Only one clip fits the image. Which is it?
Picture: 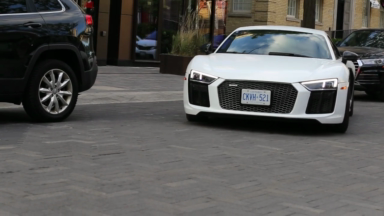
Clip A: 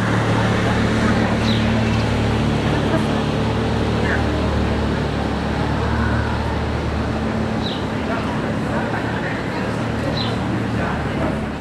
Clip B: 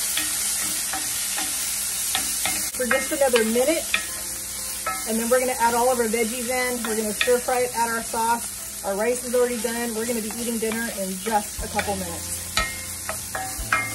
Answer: A